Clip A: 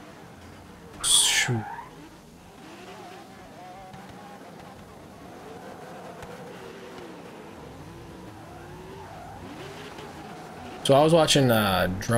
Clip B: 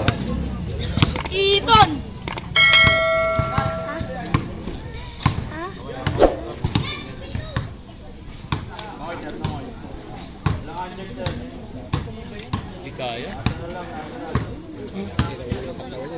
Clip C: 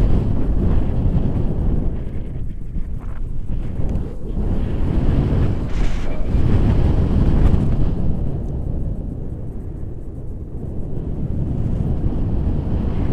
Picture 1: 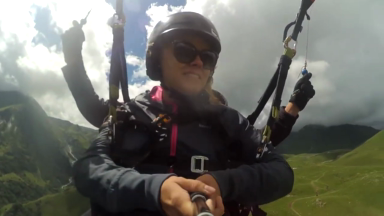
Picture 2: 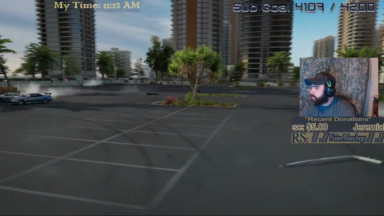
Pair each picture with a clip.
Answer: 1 C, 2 A